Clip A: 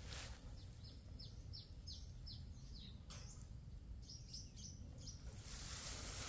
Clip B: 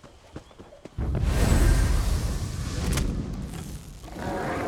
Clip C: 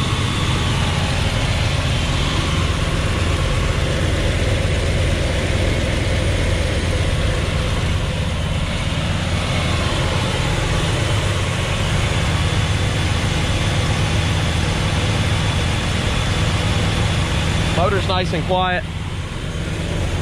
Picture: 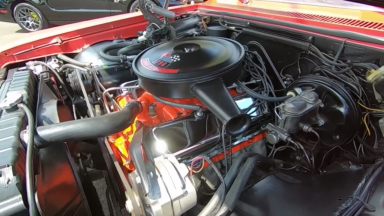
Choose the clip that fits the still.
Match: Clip C